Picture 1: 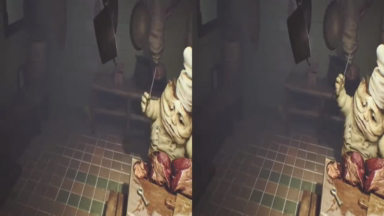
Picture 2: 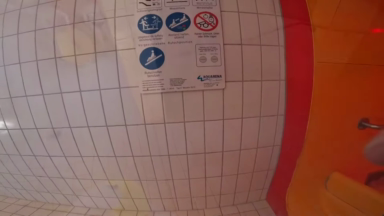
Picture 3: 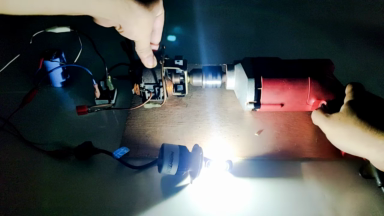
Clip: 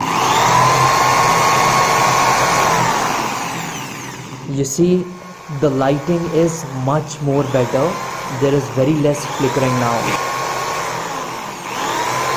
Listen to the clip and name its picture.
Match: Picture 3